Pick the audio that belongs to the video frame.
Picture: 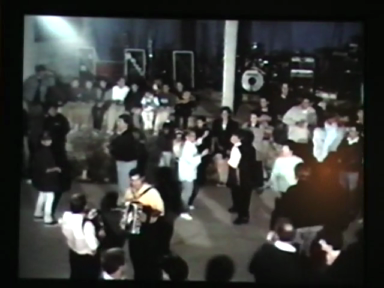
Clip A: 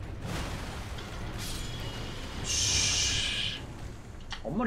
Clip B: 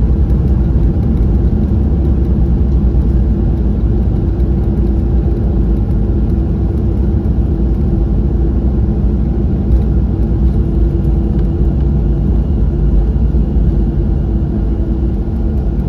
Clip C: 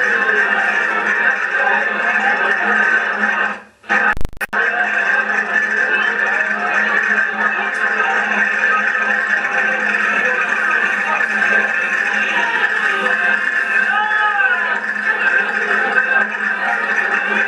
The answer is C